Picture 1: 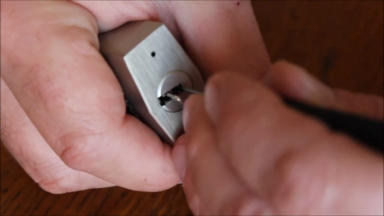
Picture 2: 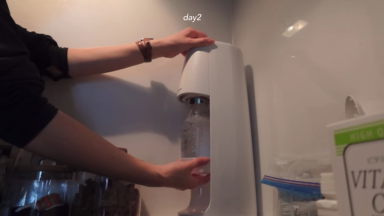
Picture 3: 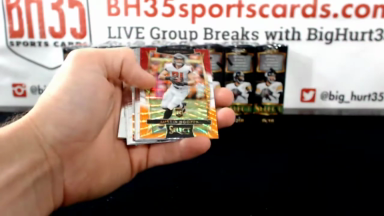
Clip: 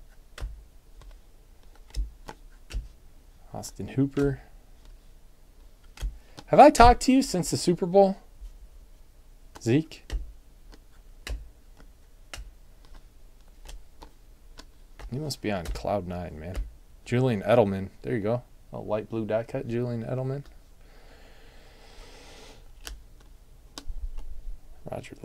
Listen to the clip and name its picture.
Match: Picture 3